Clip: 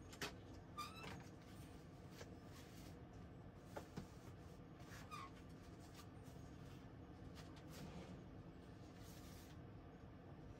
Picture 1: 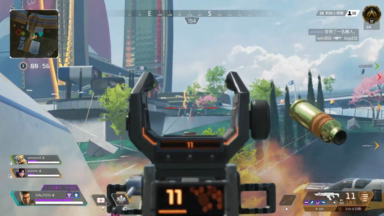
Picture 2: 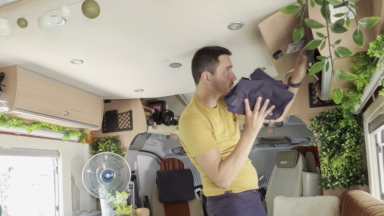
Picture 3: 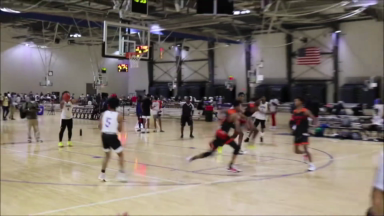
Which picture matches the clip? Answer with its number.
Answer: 2